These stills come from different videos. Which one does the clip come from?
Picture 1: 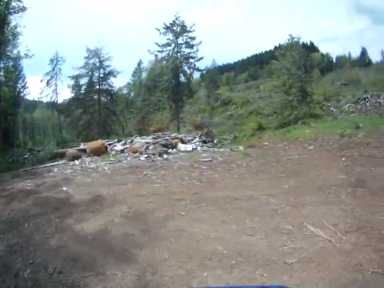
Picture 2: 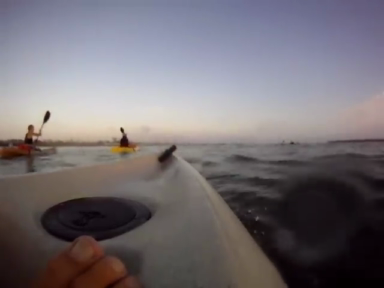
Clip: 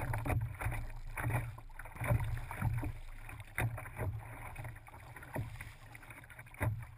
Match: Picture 2